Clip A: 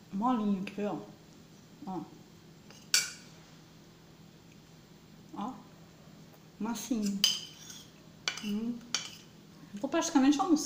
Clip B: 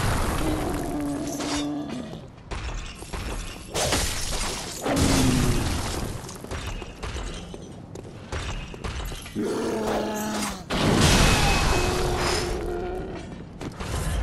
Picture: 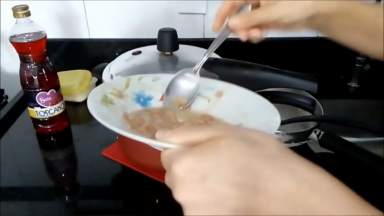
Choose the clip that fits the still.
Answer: A